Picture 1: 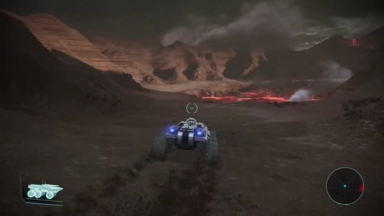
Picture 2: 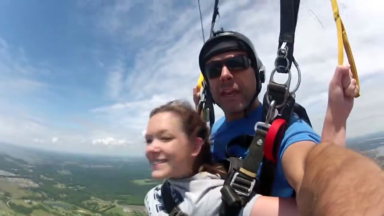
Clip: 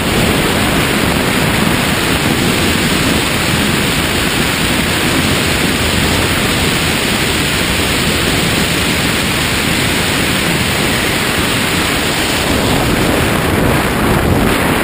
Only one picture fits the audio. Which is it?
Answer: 2